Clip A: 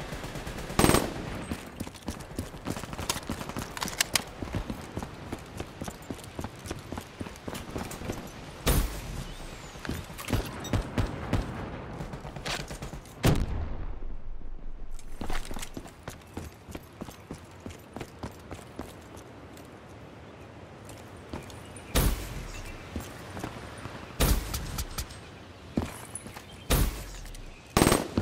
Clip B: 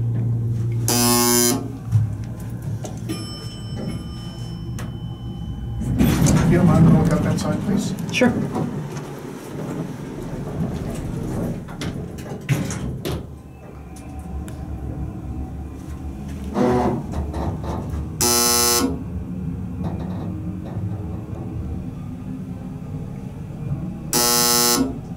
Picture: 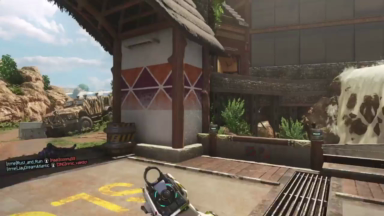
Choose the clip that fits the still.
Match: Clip A